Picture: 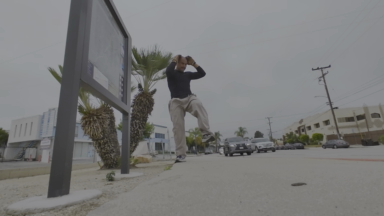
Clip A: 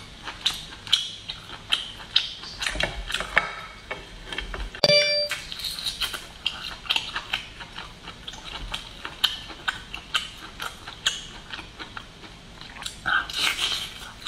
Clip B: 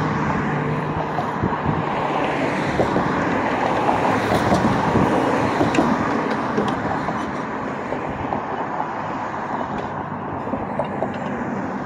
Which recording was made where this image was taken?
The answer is B